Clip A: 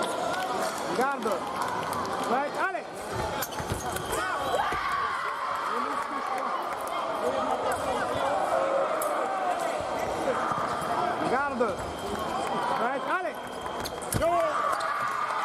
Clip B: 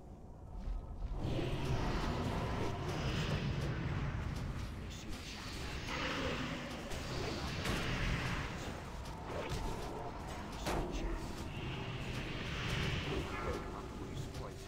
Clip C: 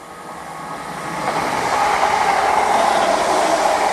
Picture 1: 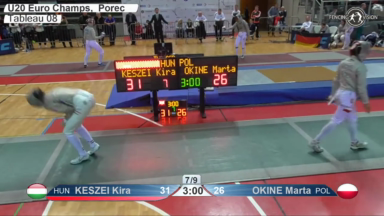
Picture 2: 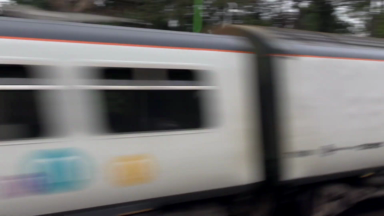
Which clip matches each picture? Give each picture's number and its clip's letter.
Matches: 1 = A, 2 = C